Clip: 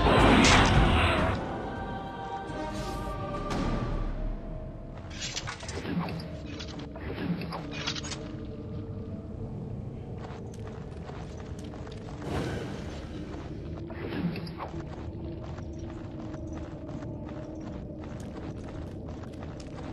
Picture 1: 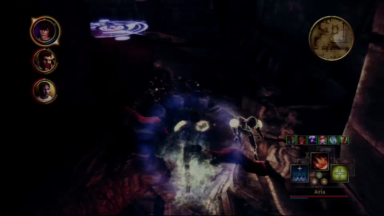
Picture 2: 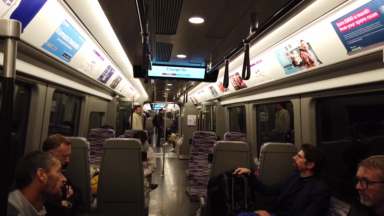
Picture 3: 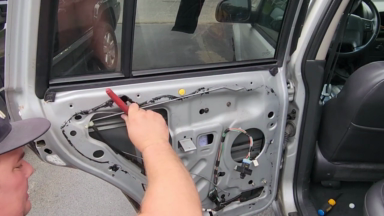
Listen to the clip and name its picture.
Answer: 1